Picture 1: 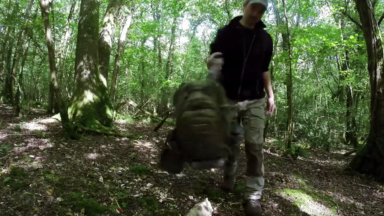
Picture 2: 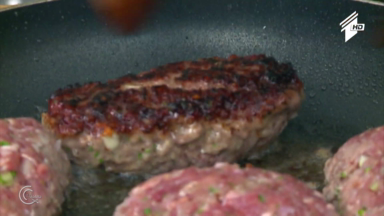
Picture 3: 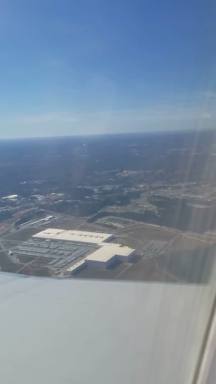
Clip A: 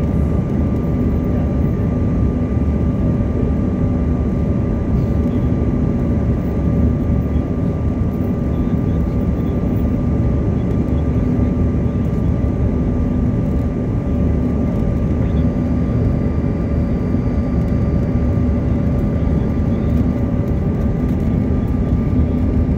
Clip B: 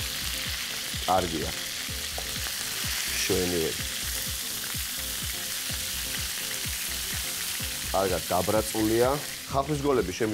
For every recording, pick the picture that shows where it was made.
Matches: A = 3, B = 2